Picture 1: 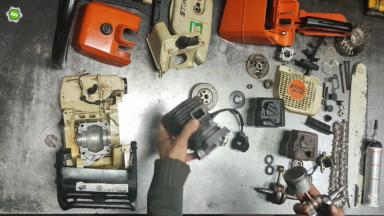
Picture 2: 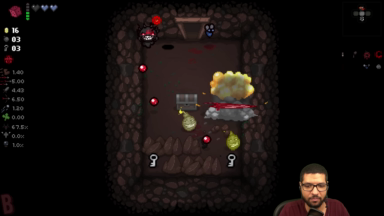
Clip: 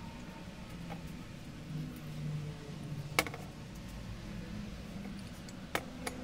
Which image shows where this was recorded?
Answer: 1